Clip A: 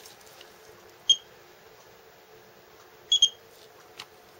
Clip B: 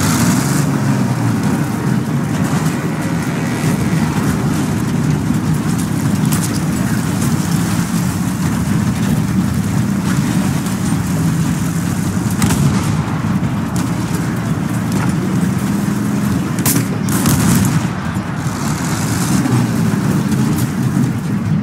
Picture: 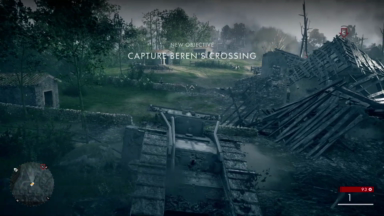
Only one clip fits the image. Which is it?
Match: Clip B